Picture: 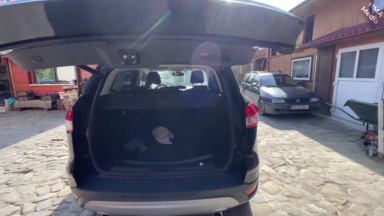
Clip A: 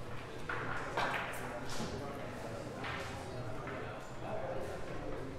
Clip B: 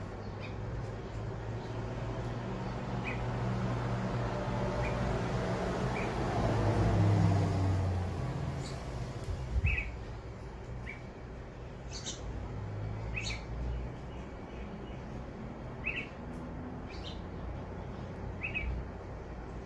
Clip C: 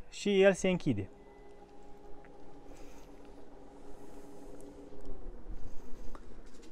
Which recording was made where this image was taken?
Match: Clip C